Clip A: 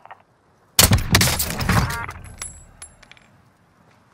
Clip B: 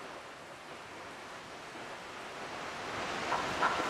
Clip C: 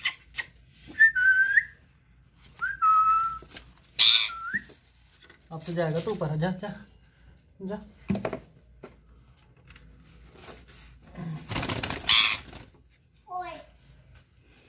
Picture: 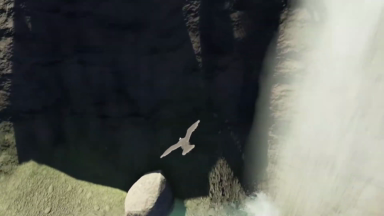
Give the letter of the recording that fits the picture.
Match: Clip B